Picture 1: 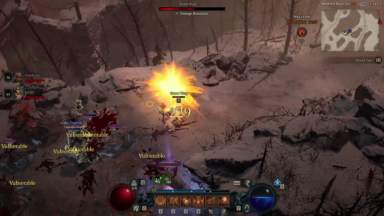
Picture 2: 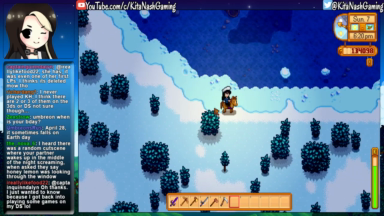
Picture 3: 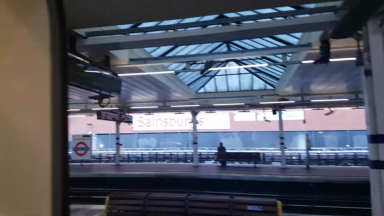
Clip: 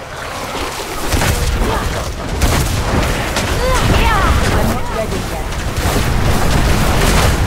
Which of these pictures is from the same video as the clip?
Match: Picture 1